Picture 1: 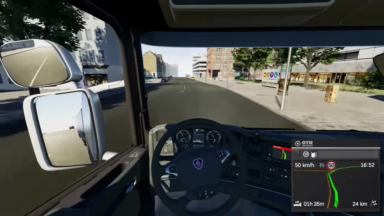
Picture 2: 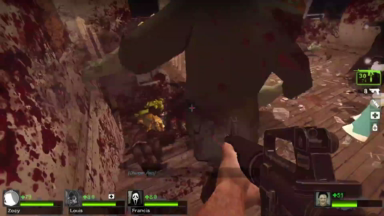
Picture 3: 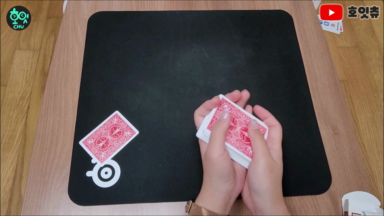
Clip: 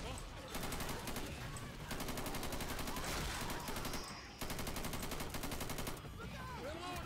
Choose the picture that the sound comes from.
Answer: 2